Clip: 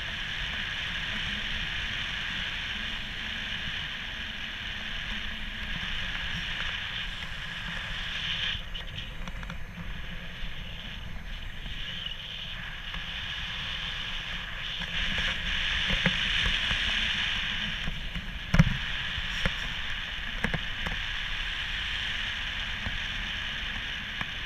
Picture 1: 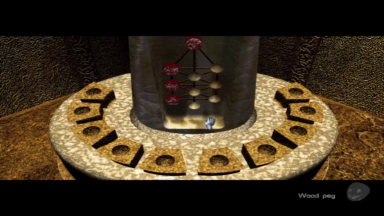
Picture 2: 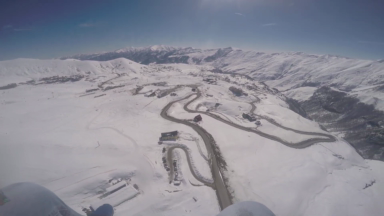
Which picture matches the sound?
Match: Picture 2